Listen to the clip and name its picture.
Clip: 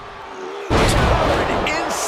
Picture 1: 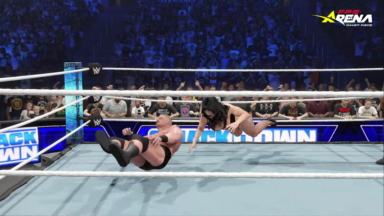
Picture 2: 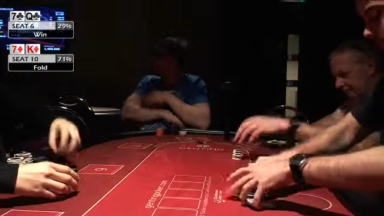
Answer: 1